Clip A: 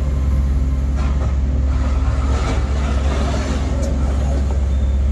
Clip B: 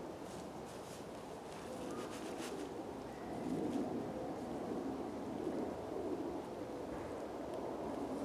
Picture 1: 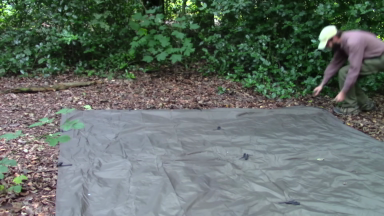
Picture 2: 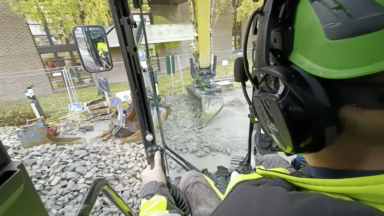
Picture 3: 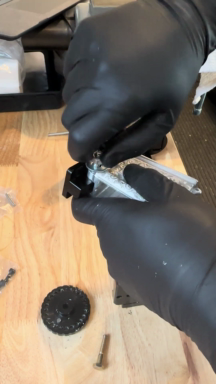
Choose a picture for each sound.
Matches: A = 2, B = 1